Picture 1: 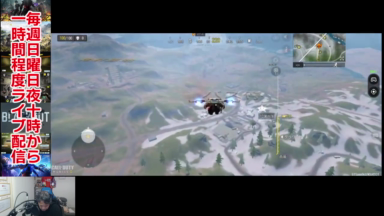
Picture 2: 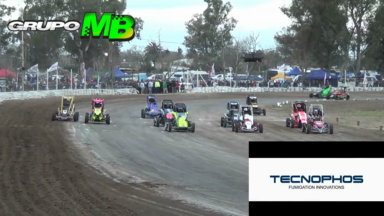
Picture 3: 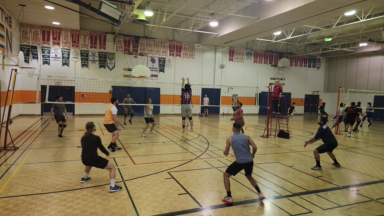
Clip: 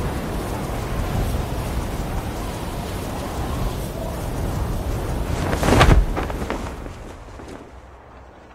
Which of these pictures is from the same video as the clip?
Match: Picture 1